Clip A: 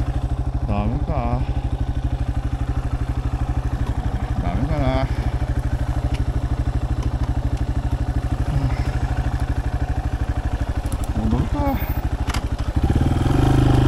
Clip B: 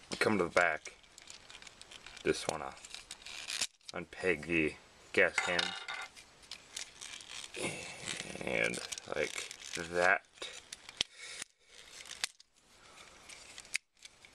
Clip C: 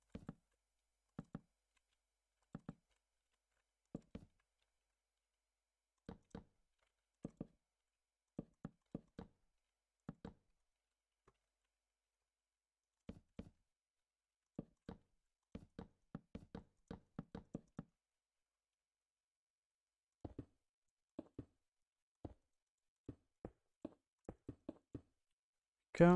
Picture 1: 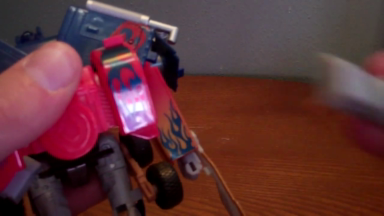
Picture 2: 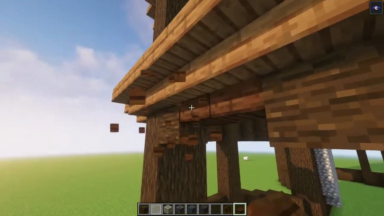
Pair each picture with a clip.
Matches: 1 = B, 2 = C